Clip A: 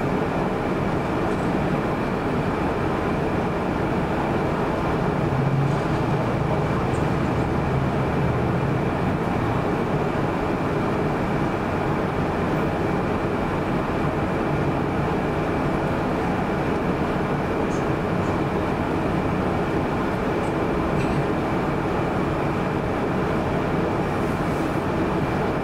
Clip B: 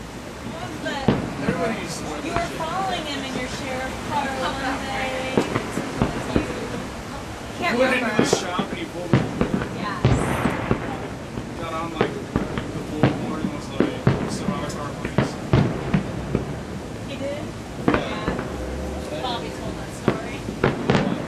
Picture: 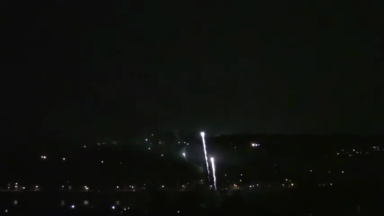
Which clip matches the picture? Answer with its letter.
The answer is B